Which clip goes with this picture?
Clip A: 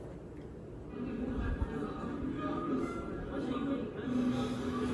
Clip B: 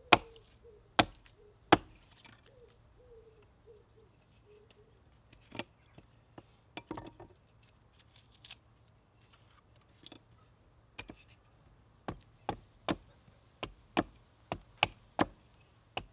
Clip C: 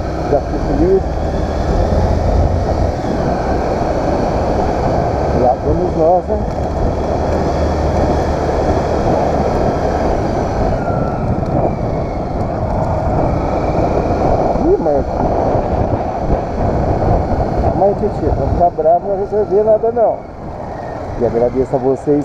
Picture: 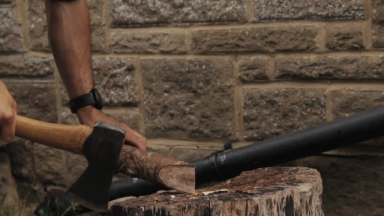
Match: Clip B